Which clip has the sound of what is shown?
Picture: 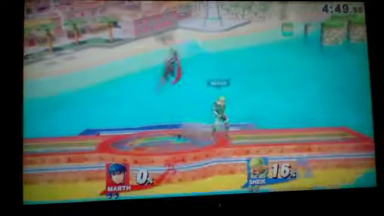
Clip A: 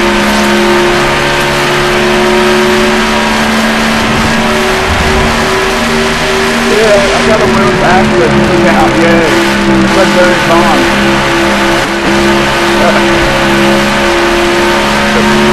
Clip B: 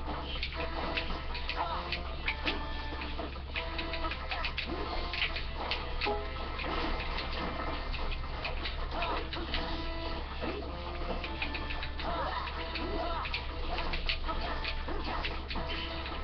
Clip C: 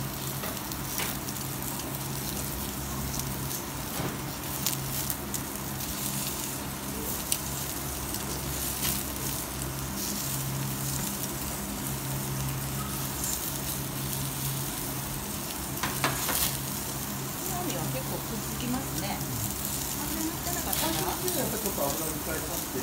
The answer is B